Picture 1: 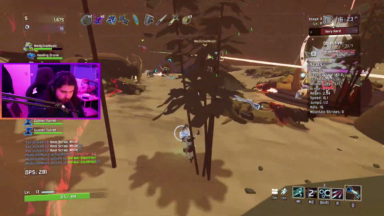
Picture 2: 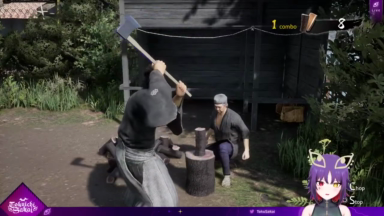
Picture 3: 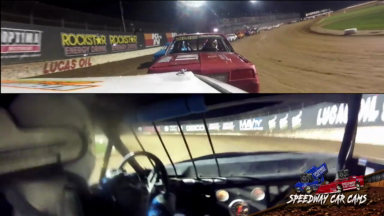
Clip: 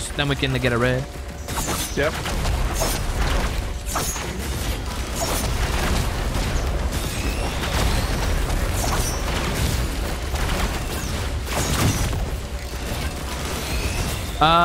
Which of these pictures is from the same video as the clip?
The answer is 1